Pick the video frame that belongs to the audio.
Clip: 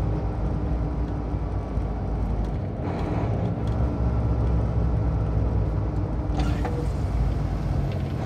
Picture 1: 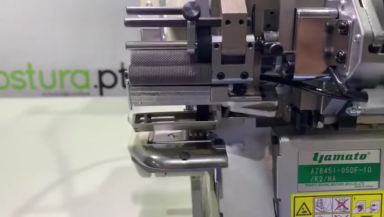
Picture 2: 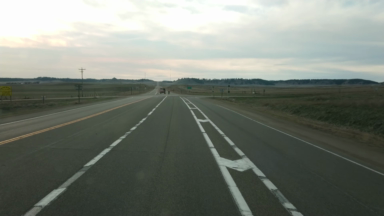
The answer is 2